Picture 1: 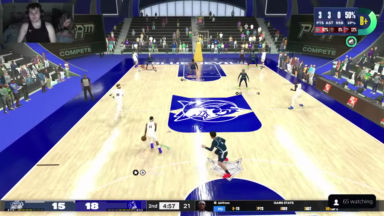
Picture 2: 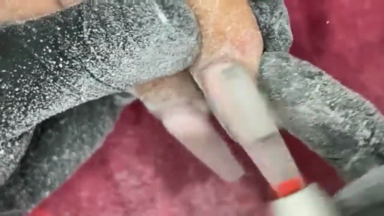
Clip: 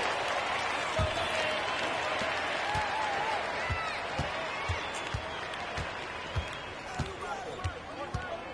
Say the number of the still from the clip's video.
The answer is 1